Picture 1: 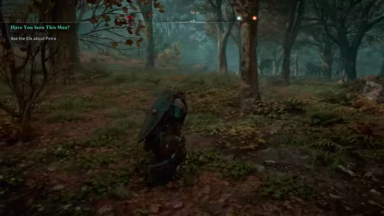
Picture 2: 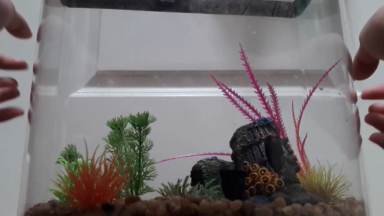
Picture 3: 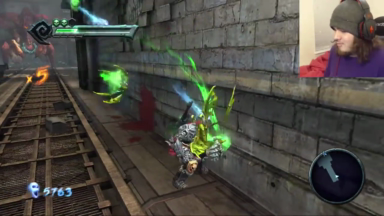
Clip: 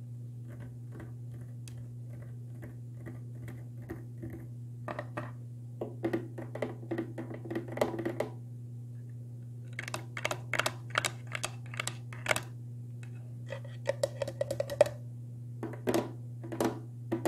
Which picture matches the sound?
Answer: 2